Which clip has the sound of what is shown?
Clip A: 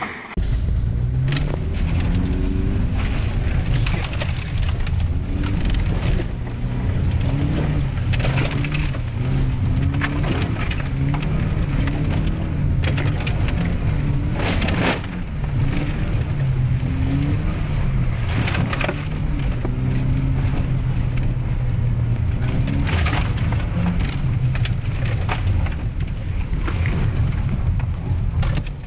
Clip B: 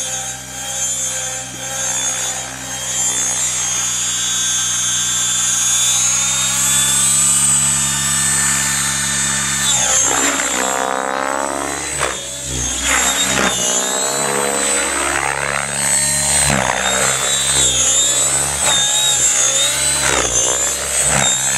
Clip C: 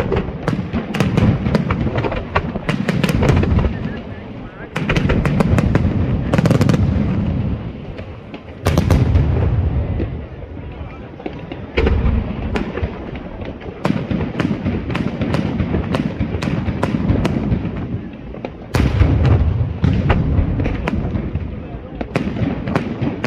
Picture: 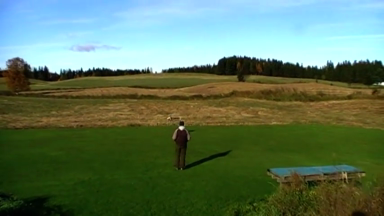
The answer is B